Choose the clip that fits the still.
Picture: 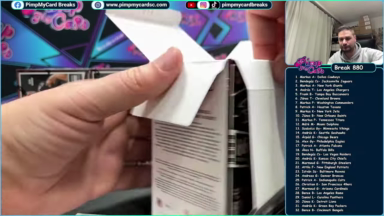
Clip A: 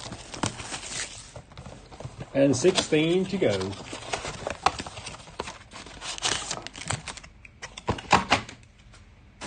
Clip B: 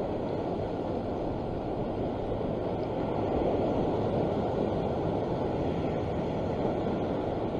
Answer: A